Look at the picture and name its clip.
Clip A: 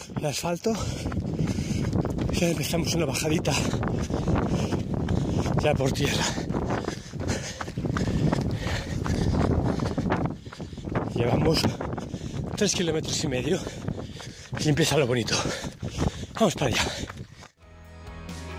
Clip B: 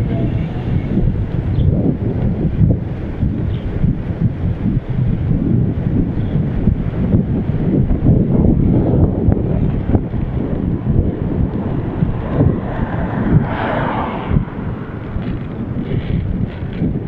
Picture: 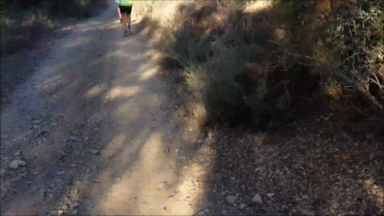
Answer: A